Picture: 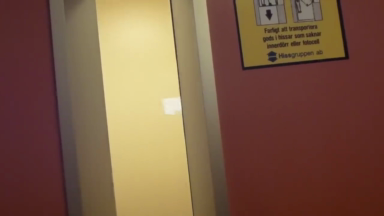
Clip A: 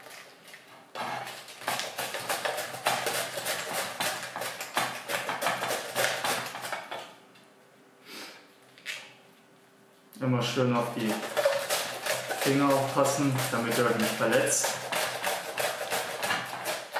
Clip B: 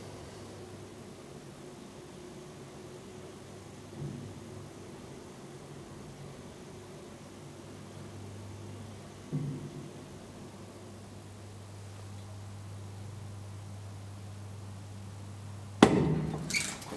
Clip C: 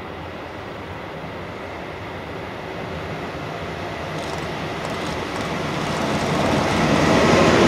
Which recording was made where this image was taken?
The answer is B